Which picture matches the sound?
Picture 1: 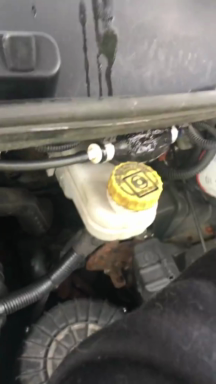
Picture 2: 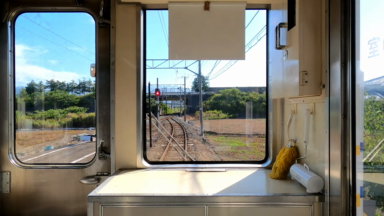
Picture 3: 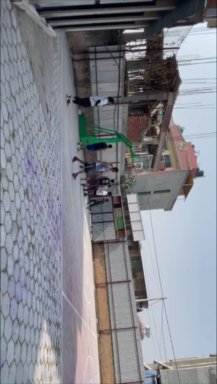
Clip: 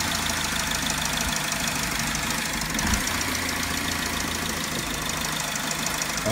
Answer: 1